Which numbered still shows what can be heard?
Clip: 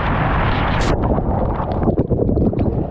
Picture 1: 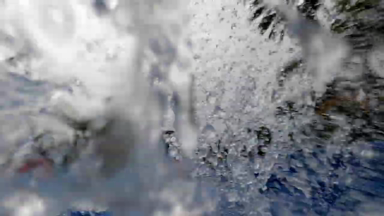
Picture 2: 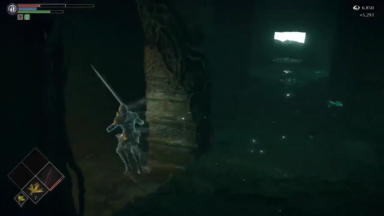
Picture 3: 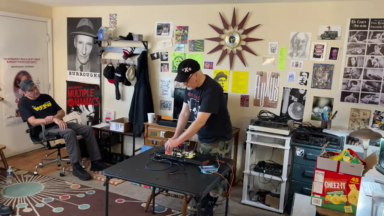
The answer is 1